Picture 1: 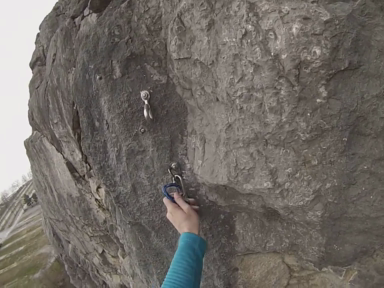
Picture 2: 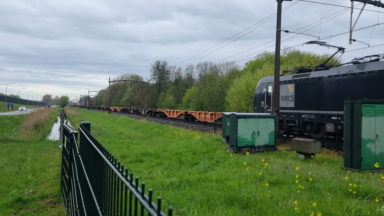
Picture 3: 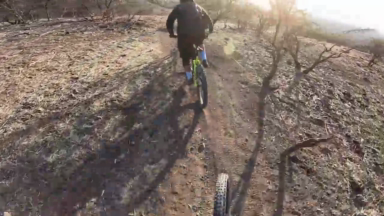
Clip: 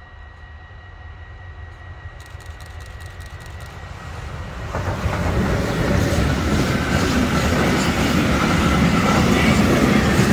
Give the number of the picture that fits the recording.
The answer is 2